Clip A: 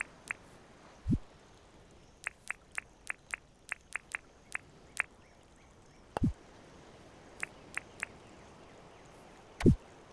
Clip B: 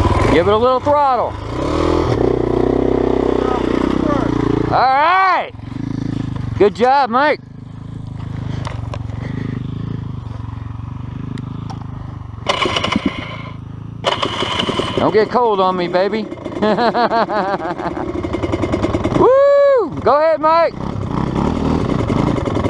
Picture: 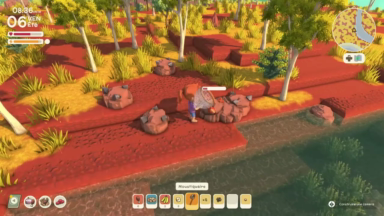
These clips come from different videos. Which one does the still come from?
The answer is A